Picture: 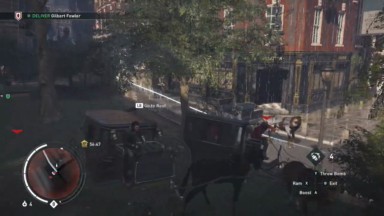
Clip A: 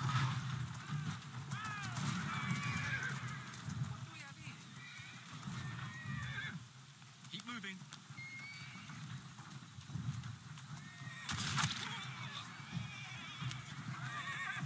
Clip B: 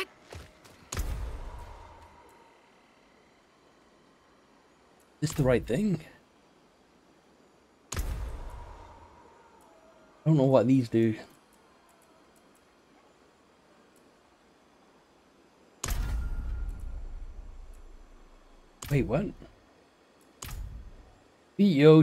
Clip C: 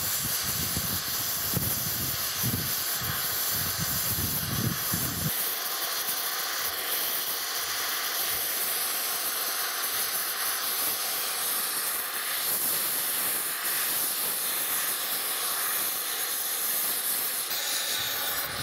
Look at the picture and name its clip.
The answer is A